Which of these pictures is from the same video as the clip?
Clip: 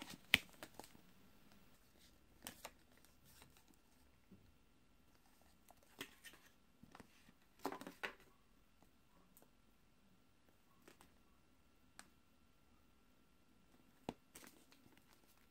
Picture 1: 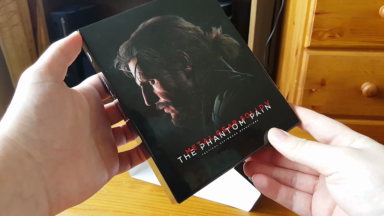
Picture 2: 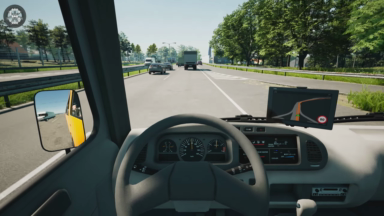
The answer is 1